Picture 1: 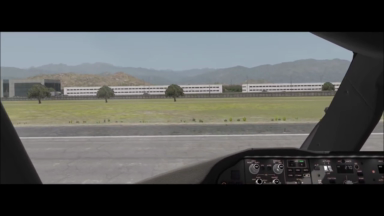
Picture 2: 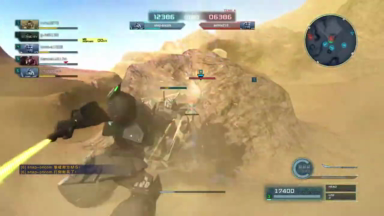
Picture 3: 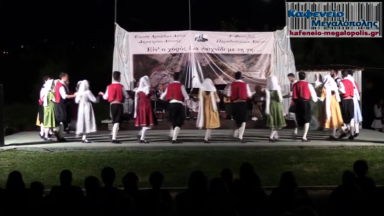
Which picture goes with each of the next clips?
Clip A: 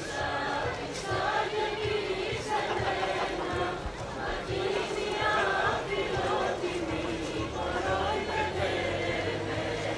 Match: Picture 3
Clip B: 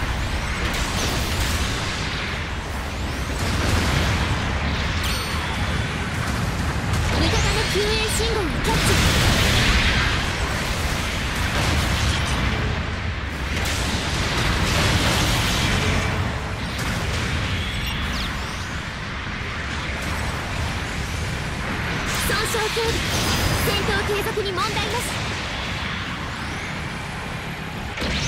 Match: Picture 2